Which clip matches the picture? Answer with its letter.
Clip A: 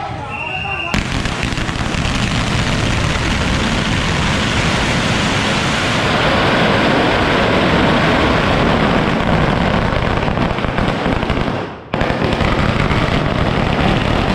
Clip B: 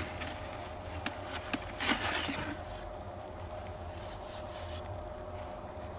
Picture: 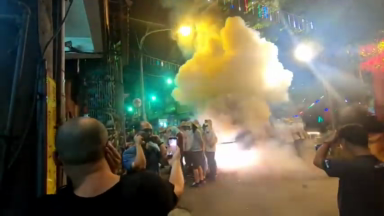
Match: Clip A